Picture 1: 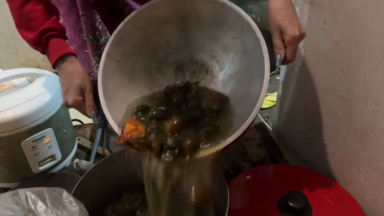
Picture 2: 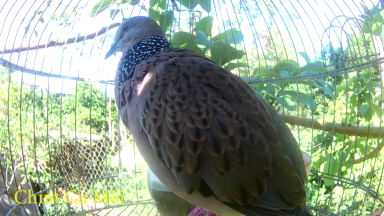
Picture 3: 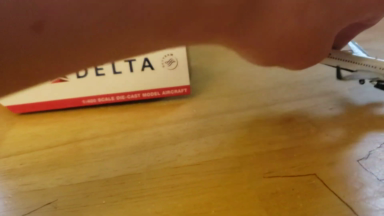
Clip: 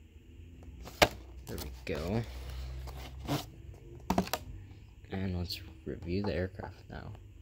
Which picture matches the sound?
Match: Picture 3